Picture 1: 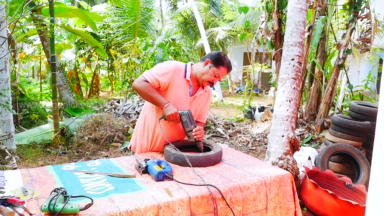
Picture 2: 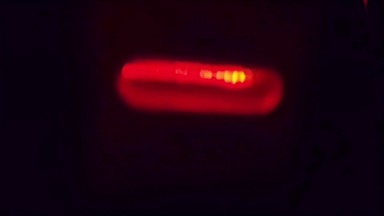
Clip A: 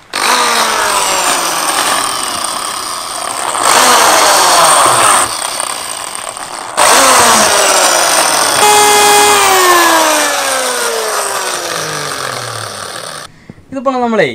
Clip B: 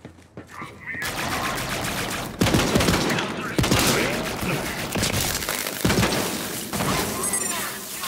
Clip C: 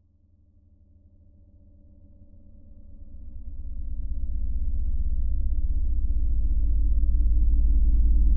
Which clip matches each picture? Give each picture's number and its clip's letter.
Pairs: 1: A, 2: C